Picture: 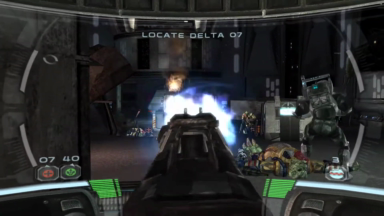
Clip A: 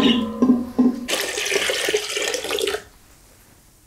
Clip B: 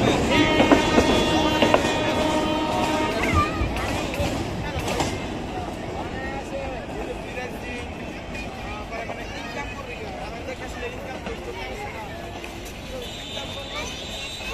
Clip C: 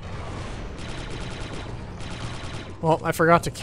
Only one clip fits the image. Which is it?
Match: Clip C